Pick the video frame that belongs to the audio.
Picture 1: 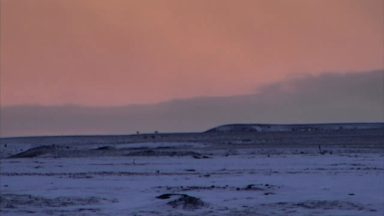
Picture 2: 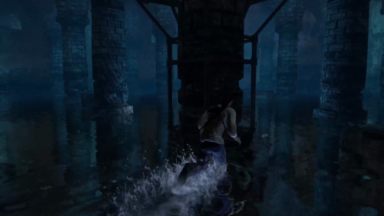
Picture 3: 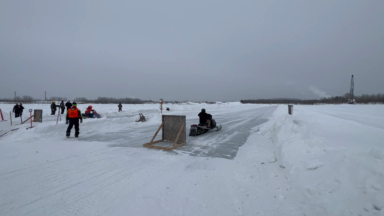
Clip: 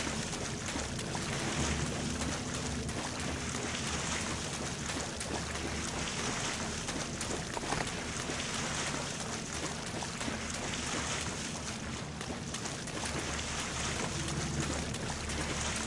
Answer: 2